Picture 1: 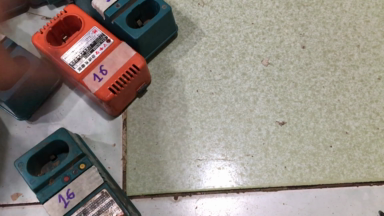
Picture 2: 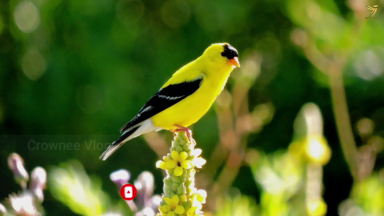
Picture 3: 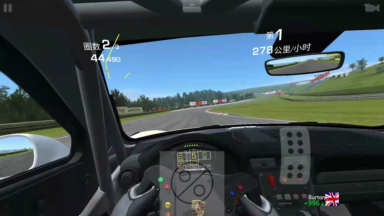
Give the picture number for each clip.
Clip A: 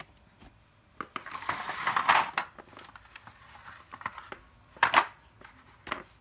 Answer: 1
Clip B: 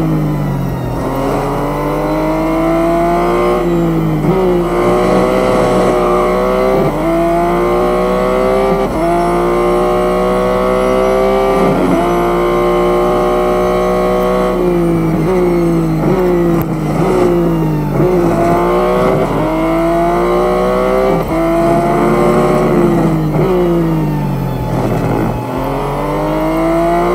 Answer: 3